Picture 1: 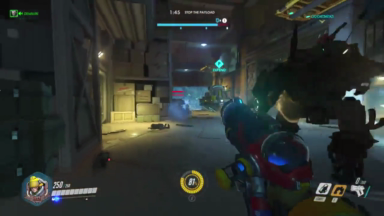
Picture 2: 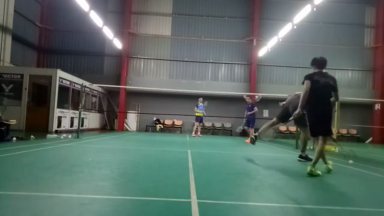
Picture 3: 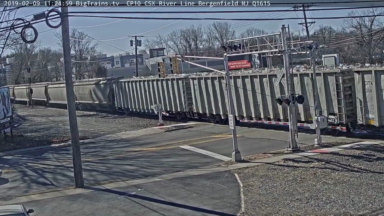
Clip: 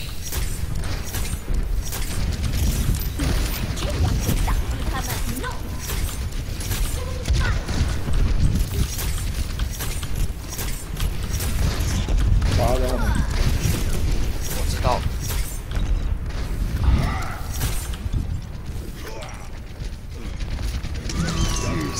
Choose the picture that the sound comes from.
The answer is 1